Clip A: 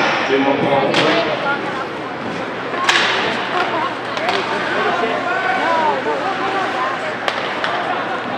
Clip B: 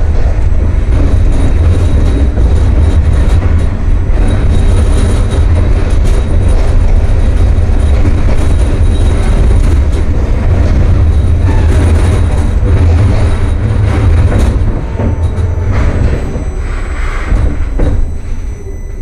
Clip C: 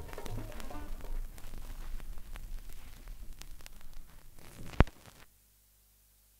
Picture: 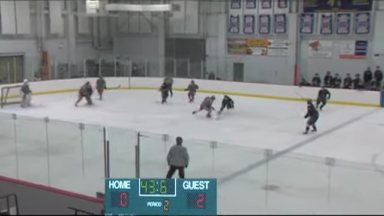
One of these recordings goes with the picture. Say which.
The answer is A